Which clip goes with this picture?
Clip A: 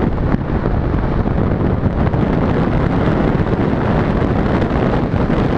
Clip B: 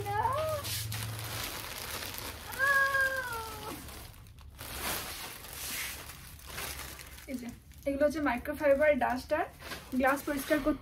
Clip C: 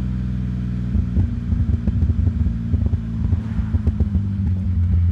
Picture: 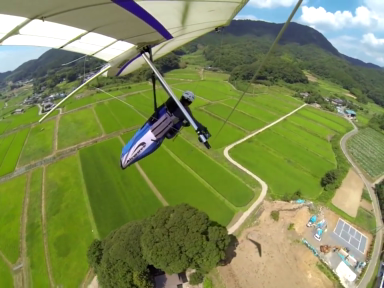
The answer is A